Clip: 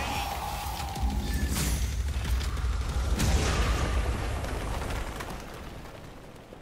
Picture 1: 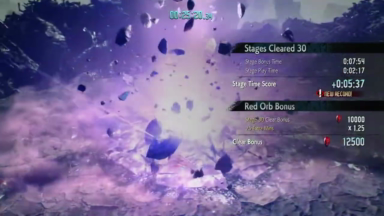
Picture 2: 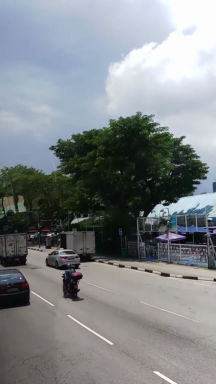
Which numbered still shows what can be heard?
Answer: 1